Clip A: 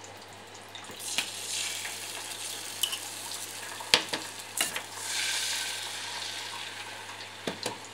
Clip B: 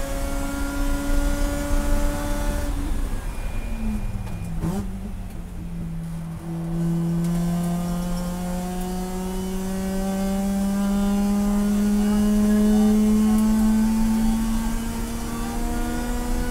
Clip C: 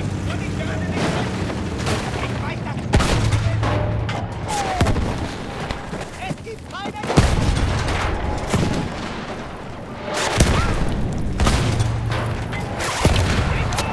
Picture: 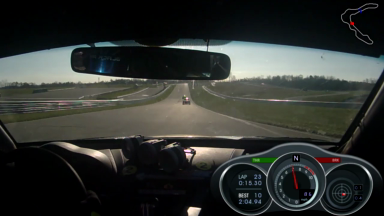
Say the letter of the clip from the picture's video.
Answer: B